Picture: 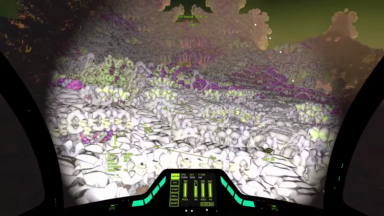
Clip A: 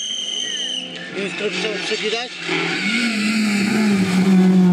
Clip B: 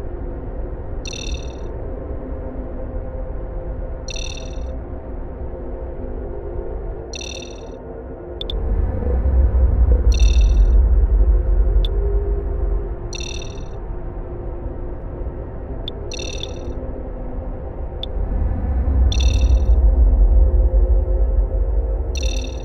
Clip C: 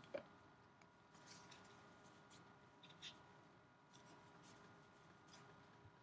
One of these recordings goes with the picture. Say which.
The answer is B